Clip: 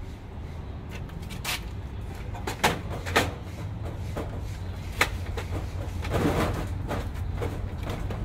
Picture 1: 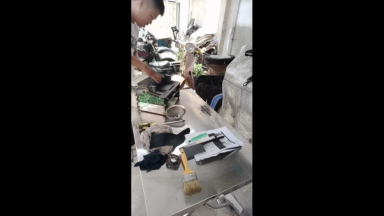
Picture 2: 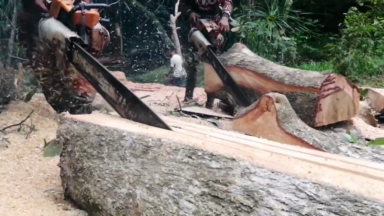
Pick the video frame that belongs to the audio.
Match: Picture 1